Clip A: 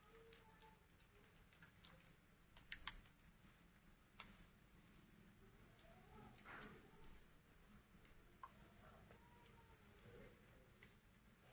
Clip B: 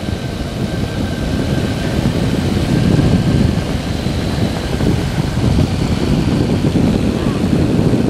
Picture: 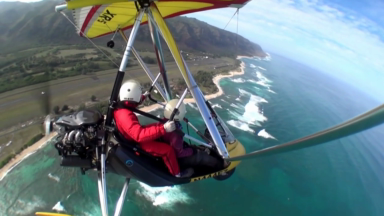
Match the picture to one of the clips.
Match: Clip B